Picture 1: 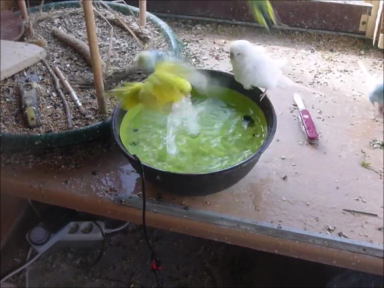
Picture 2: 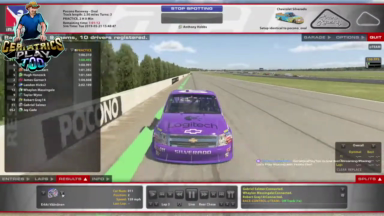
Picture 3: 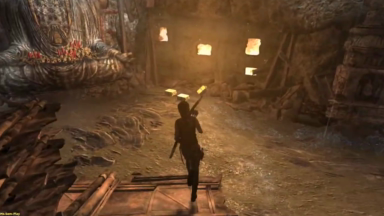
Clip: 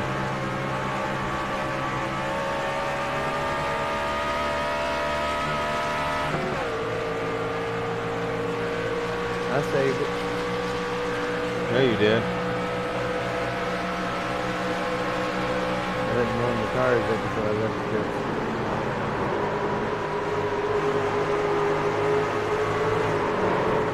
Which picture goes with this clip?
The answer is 2